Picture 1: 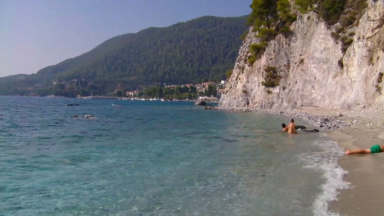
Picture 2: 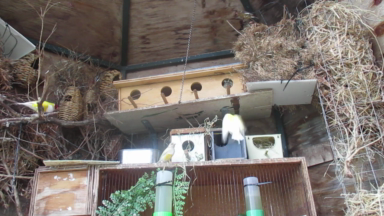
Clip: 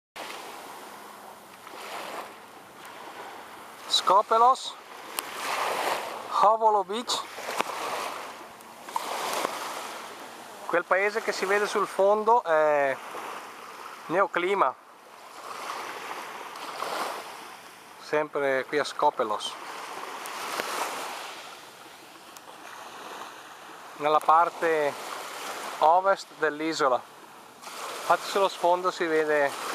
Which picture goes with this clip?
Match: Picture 1